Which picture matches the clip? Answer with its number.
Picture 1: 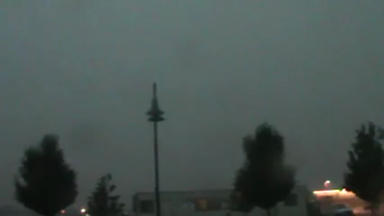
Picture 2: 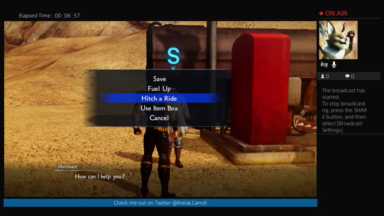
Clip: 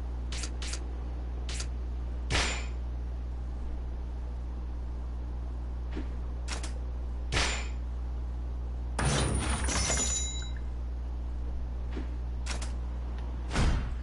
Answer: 2